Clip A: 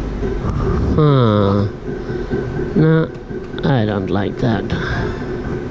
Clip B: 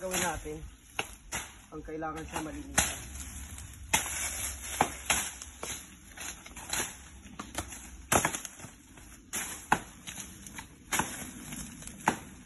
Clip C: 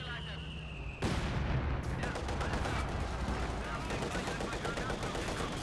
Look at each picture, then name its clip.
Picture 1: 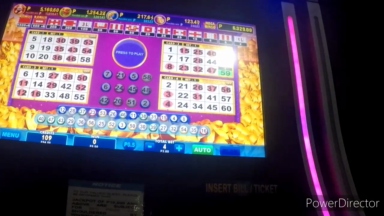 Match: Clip A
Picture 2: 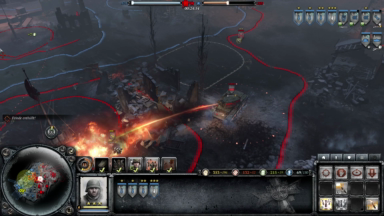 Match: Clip C